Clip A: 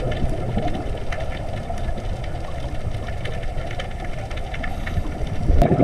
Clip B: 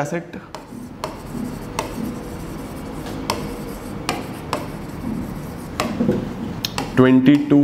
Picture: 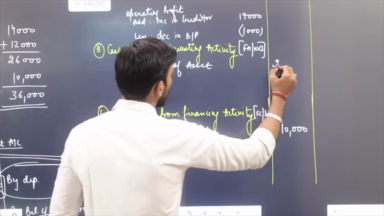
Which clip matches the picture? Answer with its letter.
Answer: B